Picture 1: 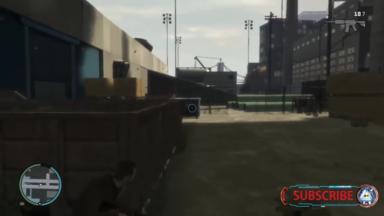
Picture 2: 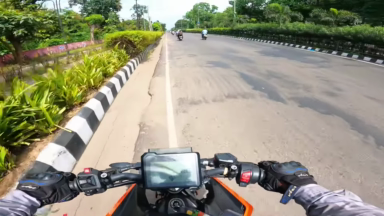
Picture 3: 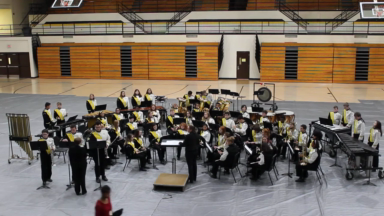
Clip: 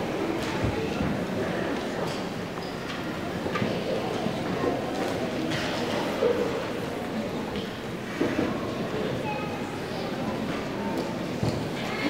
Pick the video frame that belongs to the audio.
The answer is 3